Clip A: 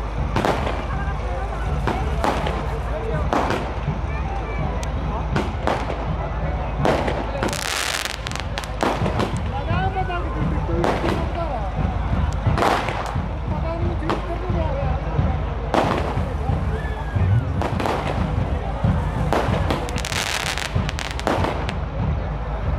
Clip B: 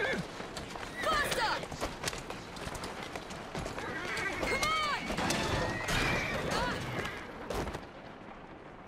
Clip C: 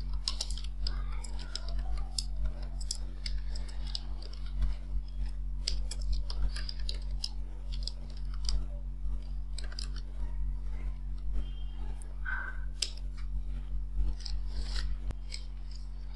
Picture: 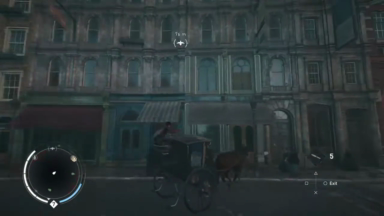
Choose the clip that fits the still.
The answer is B